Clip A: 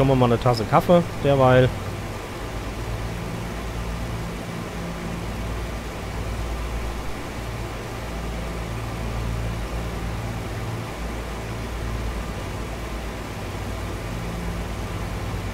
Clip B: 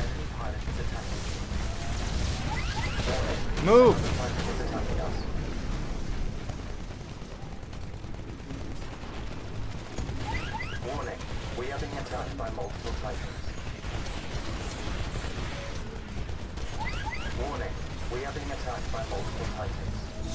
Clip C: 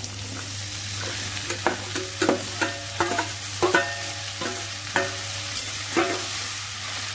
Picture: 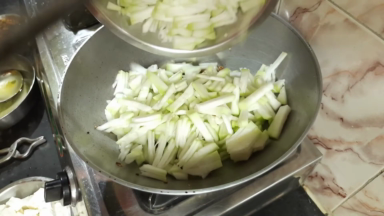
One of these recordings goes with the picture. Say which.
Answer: C